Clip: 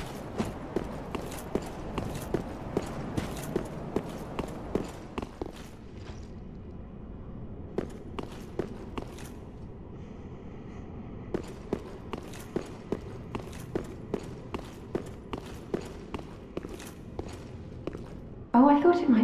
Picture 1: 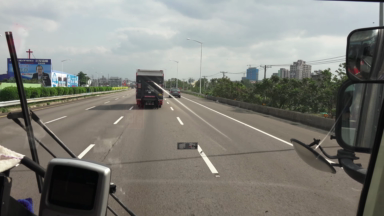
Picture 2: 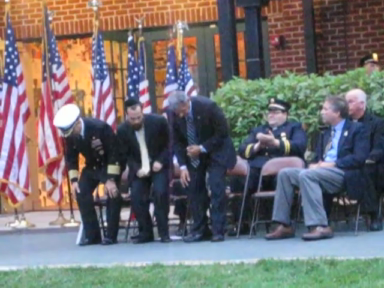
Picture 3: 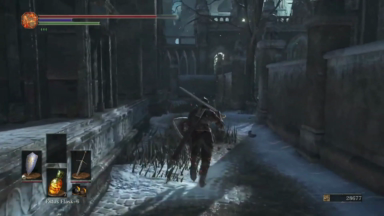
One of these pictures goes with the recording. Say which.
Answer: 3